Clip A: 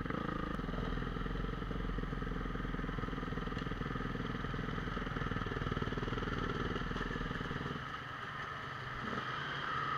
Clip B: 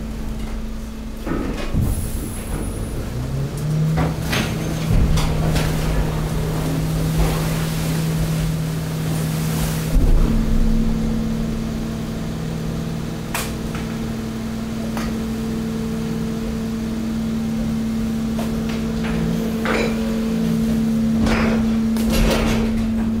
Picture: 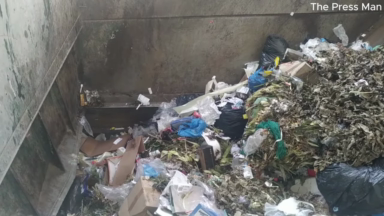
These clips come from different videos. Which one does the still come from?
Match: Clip B